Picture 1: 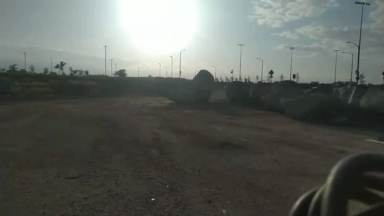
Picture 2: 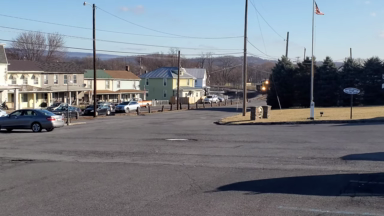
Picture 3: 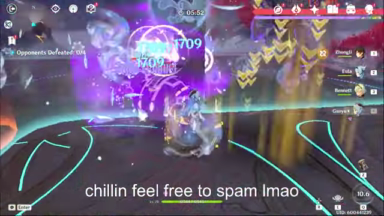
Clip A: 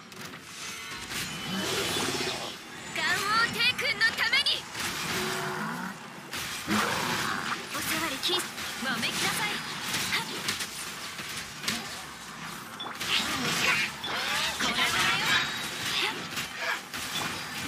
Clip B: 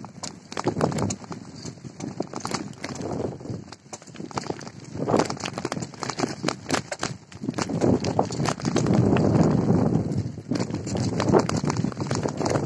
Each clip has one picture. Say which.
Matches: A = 3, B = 1